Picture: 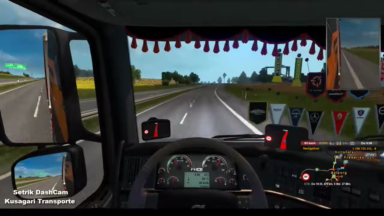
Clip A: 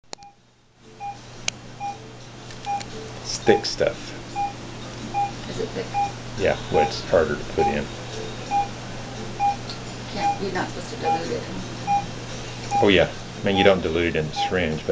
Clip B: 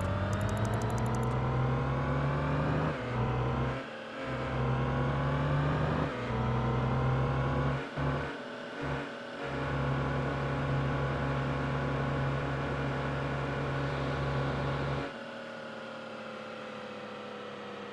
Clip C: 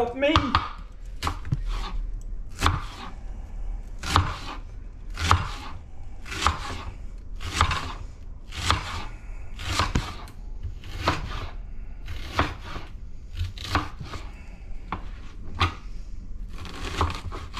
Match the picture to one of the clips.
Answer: B